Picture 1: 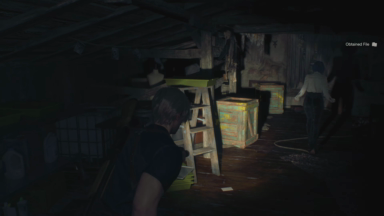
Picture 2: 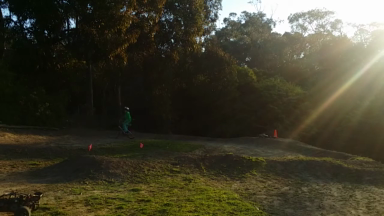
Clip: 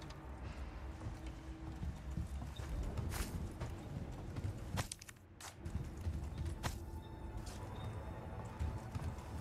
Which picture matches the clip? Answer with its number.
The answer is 1